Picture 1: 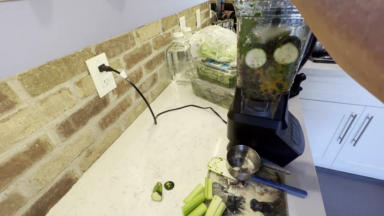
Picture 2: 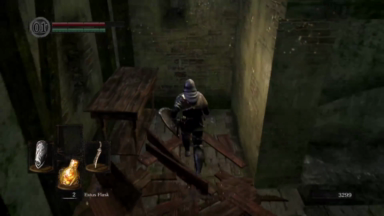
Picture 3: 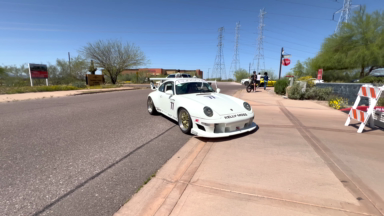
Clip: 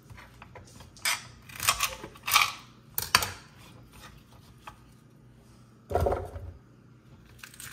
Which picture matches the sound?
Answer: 1